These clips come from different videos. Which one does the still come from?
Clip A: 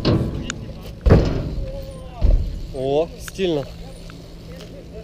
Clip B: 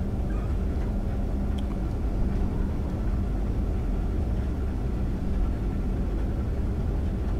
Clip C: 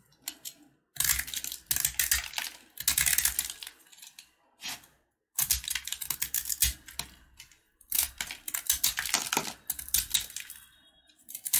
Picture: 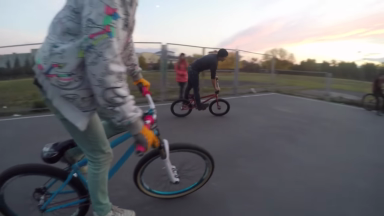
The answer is A